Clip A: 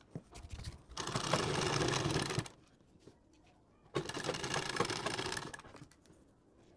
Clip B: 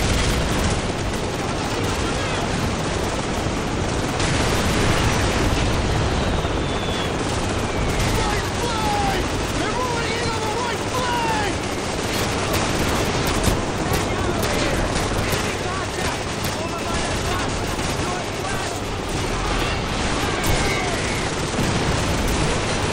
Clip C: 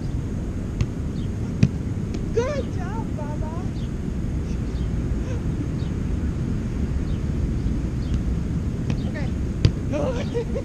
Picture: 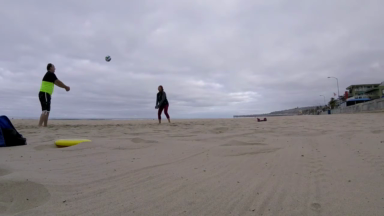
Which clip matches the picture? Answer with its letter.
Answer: C